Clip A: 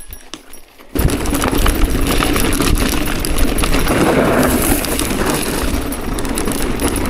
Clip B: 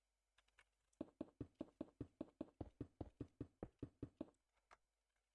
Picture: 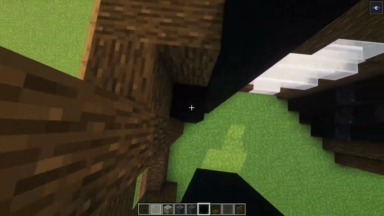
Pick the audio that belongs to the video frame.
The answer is B